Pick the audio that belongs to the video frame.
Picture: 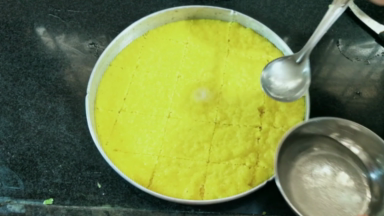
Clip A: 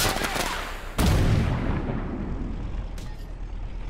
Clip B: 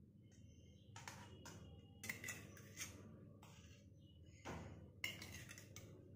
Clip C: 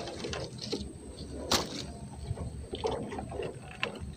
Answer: B